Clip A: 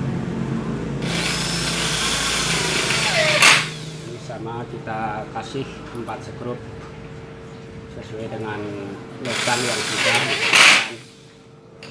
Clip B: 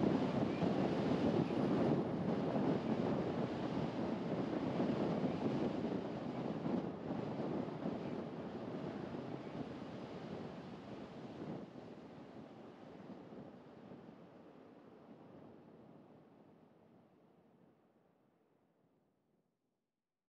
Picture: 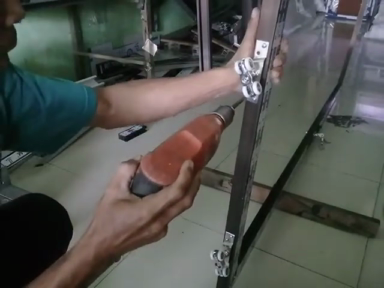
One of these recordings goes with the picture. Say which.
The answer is A